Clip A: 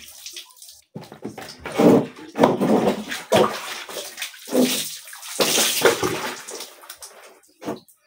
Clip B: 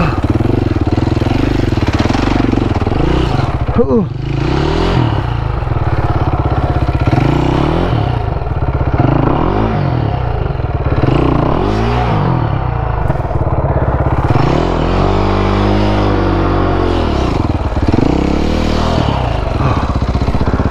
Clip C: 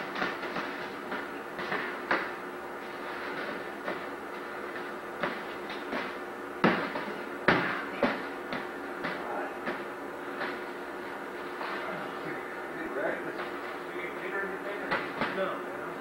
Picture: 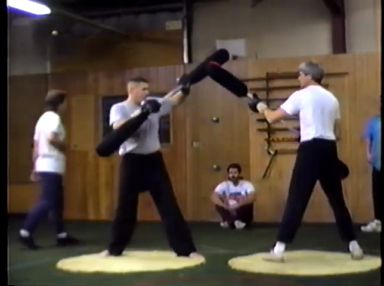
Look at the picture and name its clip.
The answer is C